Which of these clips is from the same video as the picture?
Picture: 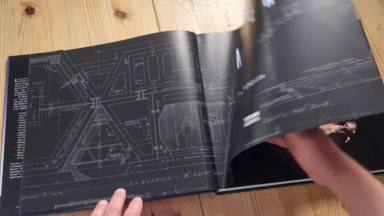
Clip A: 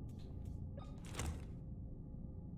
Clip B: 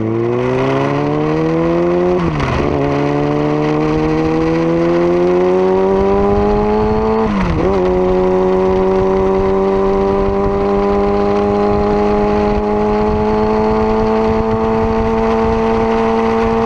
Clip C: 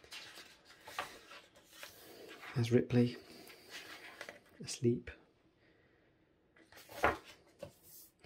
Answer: C